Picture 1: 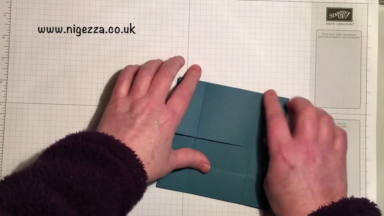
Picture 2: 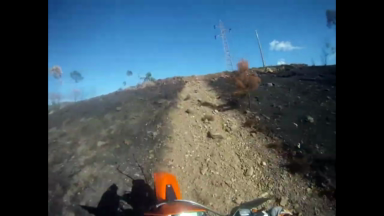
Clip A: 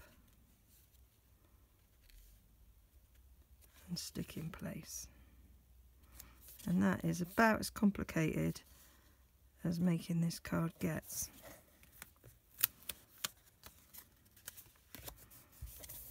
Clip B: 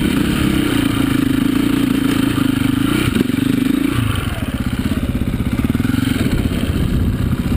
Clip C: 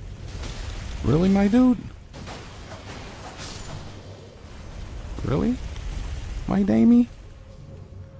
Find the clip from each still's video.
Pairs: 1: A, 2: B